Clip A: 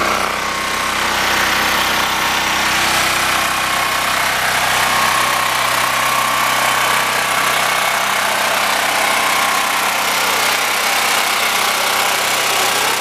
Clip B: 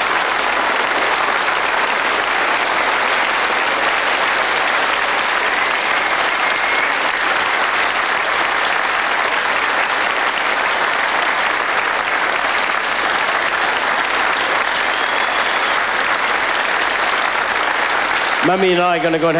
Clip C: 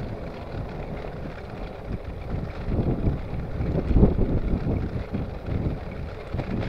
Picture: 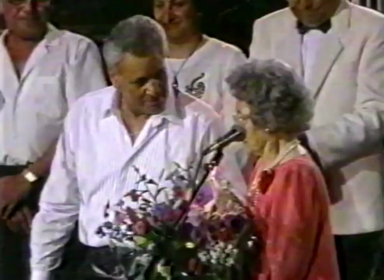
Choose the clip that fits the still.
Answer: B